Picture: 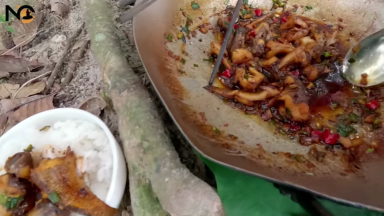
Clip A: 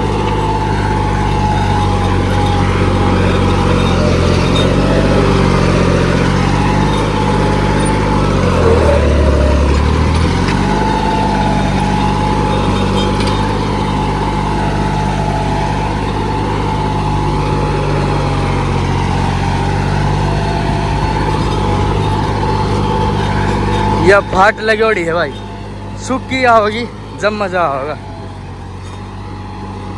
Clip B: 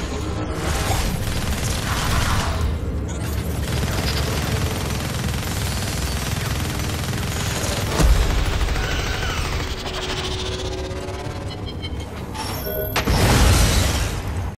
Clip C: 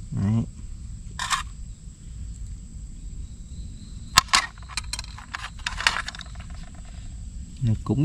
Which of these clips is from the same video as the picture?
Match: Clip C